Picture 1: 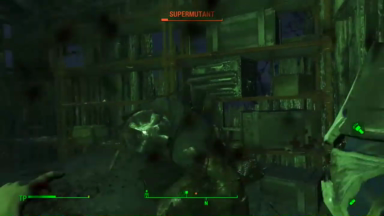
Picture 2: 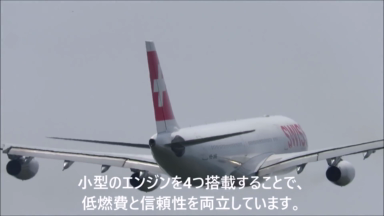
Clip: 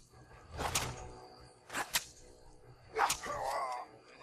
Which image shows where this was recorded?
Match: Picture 1